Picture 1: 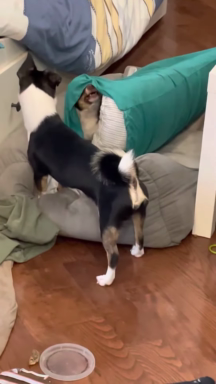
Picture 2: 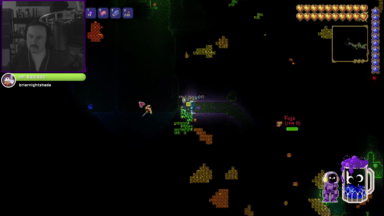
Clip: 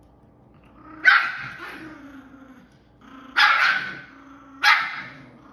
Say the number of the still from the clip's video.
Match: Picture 1